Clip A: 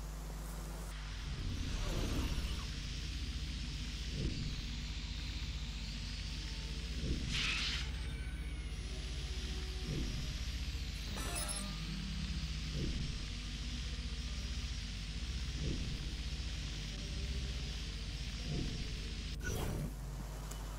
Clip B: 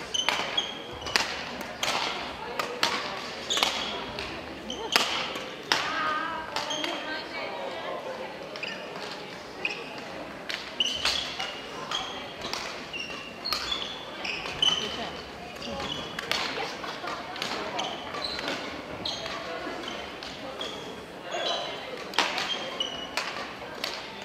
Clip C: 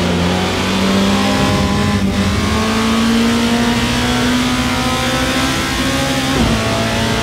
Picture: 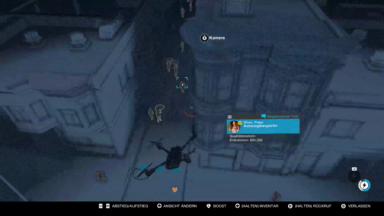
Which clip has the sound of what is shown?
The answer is A